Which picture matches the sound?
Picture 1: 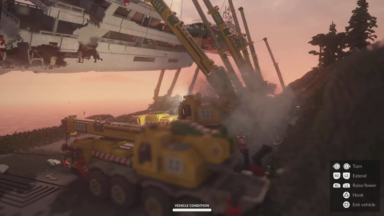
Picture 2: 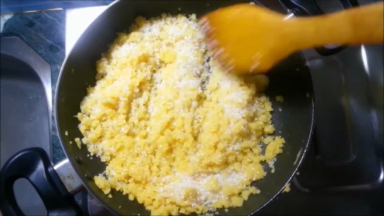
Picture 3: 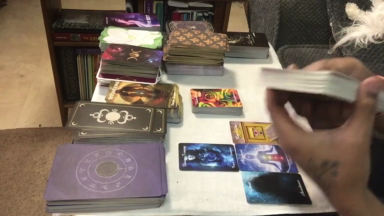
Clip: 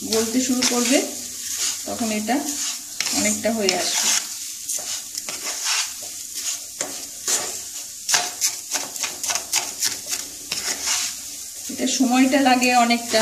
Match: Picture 2